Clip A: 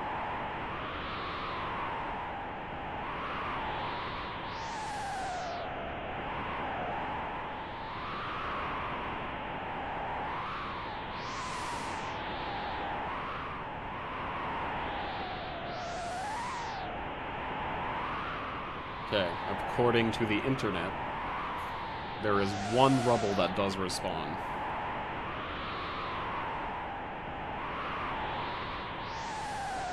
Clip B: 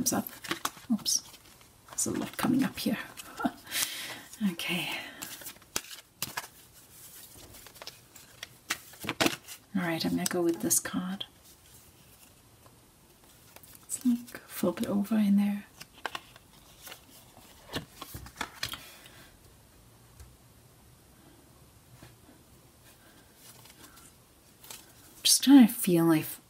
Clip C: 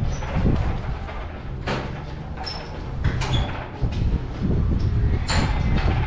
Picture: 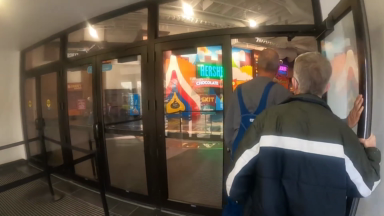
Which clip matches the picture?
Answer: C